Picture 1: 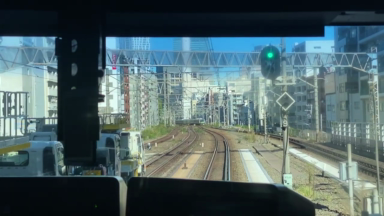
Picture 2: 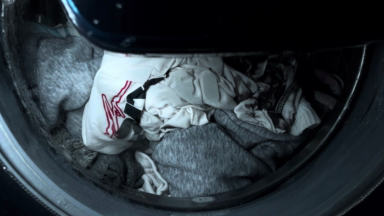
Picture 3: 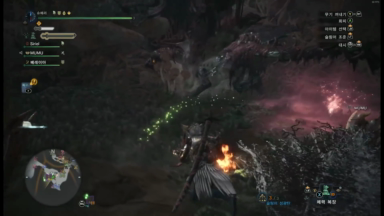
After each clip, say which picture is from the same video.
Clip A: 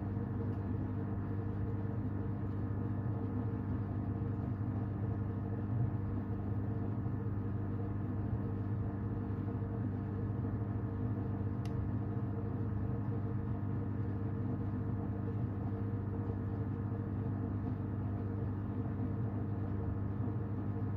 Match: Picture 2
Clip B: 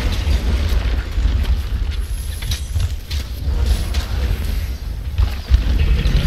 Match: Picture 3